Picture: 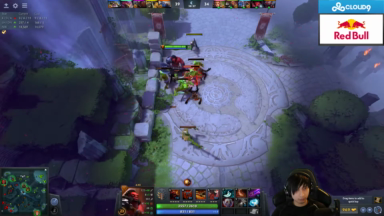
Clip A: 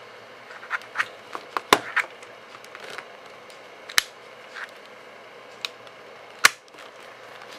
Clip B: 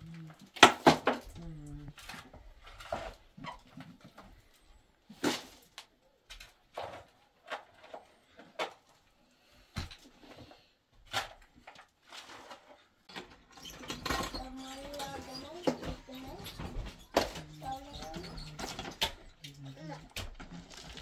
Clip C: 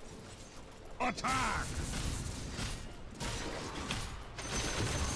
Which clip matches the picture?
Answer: C